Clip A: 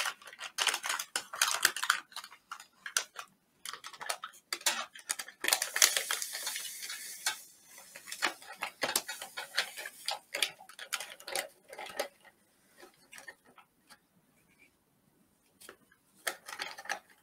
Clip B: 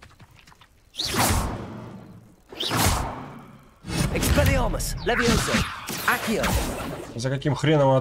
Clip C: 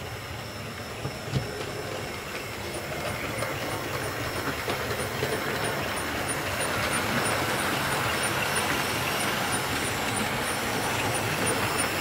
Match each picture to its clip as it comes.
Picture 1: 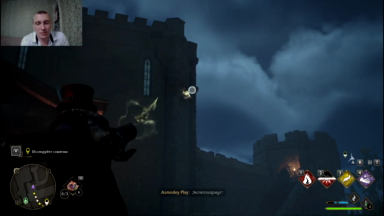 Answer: B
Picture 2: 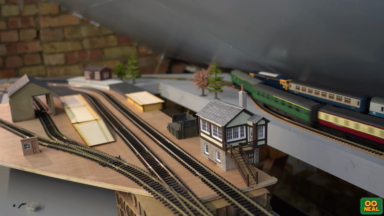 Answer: C